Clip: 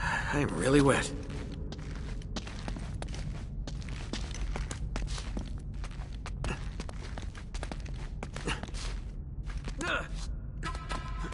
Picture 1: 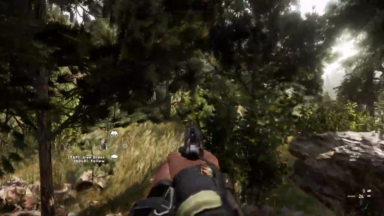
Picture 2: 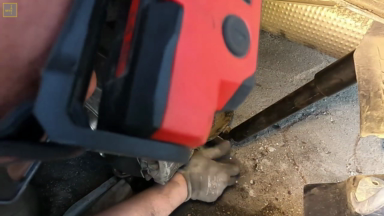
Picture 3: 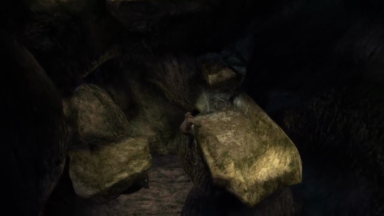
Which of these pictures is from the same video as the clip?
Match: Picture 3